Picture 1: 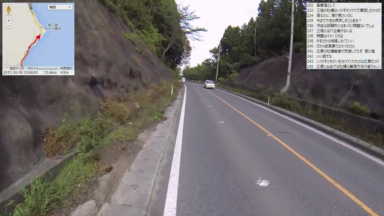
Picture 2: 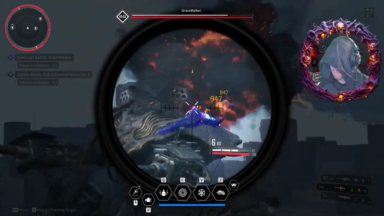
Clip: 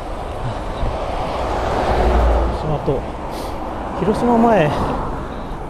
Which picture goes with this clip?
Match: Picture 1